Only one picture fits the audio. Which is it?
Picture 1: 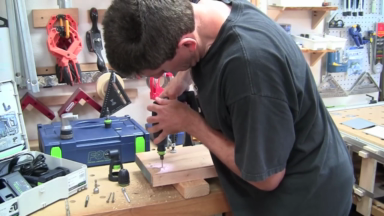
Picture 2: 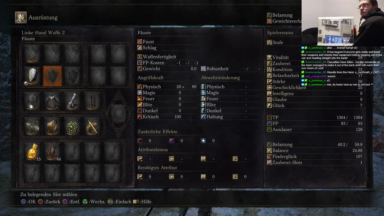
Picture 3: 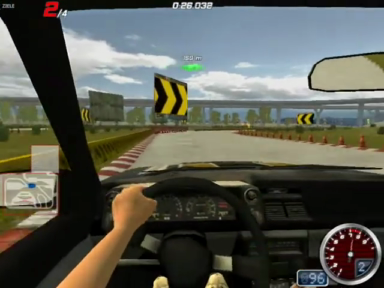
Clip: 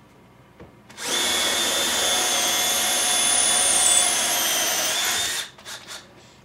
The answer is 1